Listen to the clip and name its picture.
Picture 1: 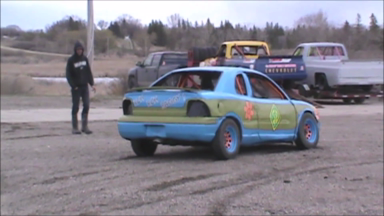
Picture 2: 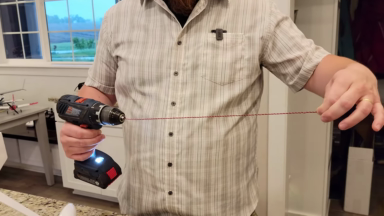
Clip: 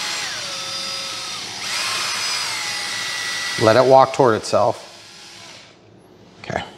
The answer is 2